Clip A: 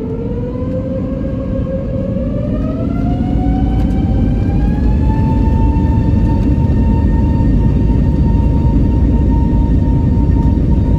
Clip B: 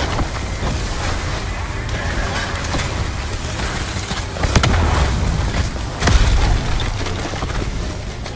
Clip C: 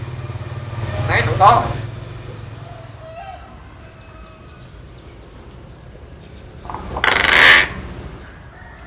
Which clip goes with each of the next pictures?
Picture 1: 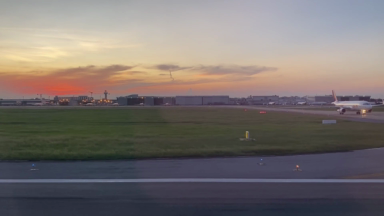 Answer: A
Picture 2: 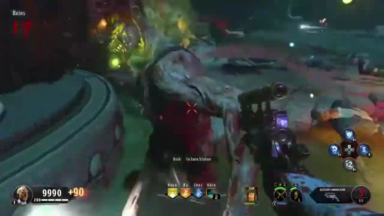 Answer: B